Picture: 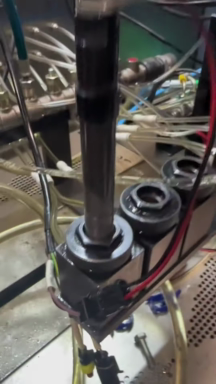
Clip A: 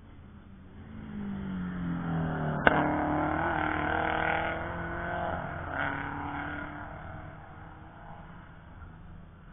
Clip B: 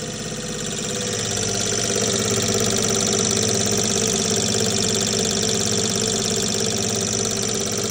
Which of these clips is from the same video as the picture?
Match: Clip B